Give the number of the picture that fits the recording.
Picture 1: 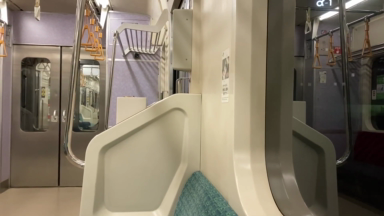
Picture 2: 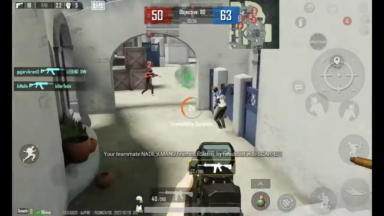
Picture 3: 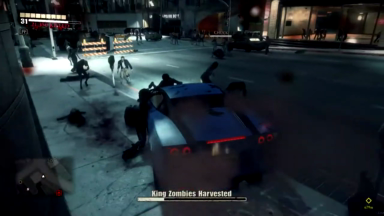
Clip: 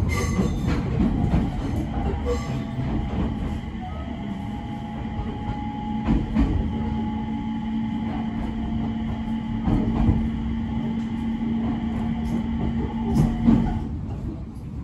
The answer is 1